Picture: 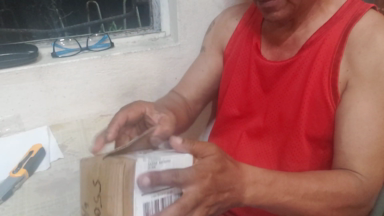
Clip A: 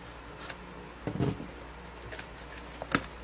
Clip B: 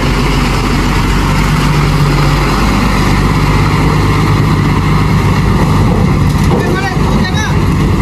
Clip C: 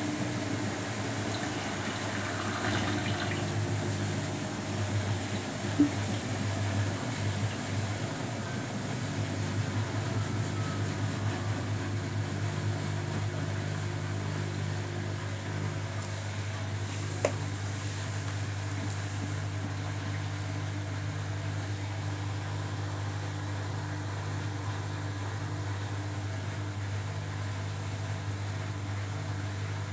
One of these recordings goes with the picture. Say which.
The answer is A